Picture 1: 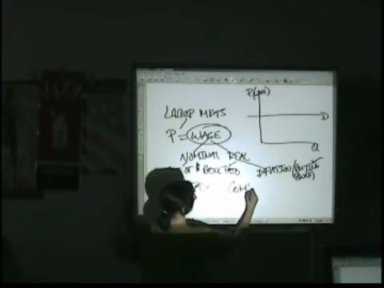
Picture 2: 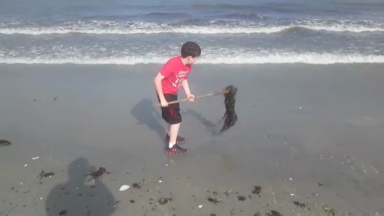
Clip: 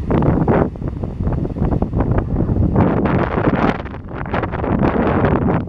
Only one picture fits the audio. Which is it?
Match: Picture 2